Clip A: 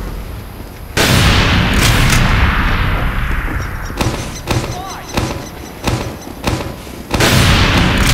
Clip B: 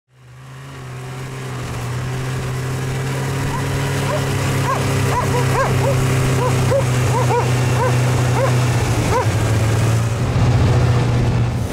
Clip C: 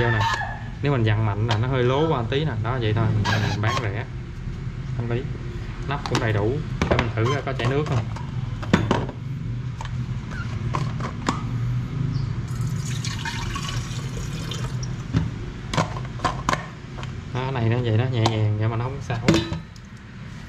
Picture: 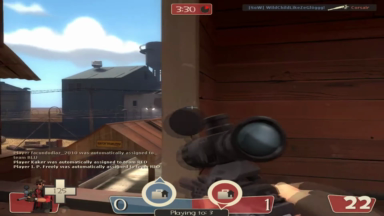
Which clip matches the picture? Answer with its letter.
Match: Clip A